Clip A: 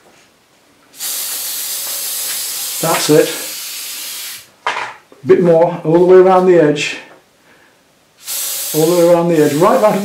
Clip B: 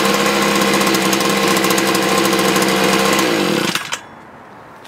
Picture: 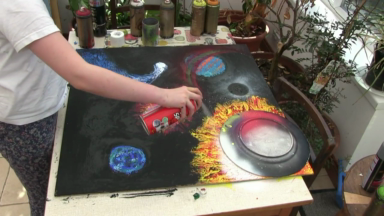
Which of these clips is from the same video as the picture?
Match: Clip A